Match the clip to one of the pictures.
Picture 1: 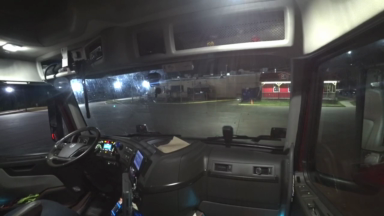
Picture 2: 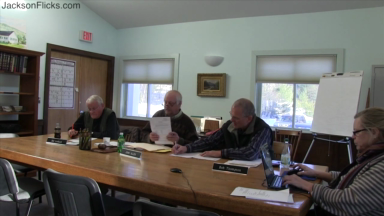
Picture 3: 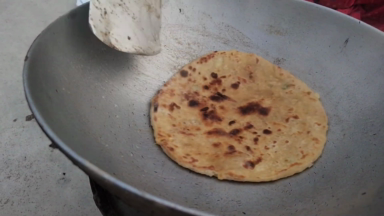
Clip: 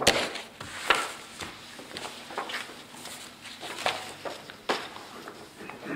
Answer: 2